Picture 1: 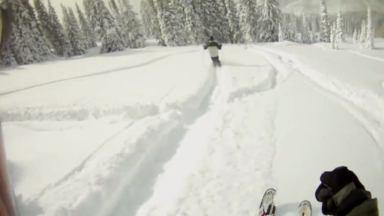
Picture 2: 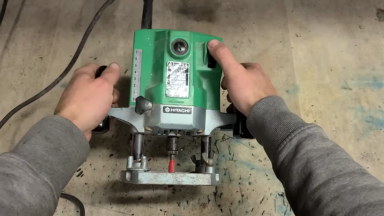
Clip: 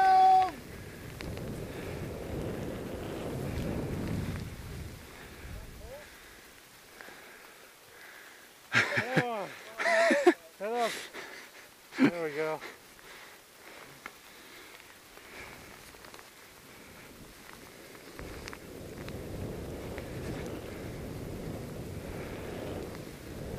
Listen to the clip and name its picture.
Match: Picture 1